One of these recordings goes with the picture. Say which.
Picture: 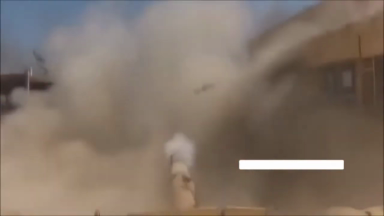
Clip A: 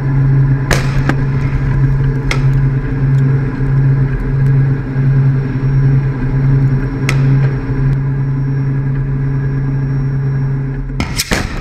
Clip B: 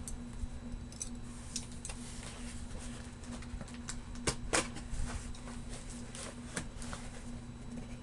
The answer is A